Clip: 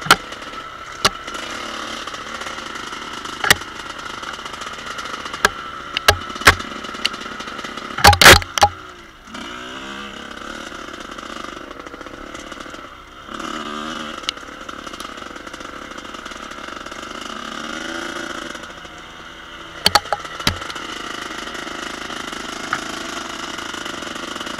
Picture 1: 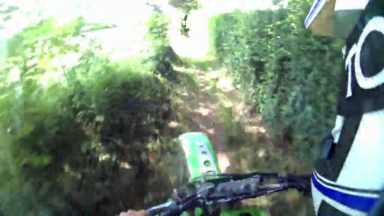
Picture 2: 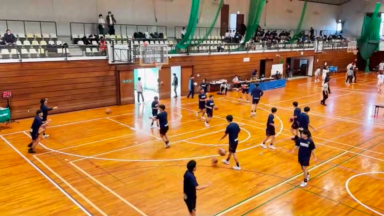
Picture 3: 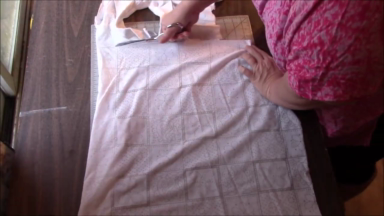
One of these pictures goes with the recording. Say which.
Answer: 1